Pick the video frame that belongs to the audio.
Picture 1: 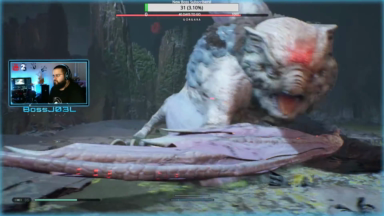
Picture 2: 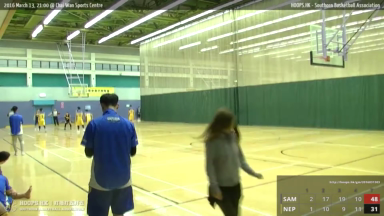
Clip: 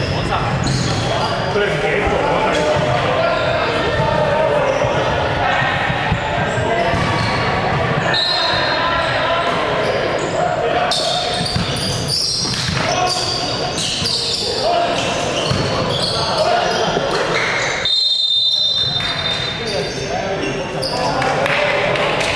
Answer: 2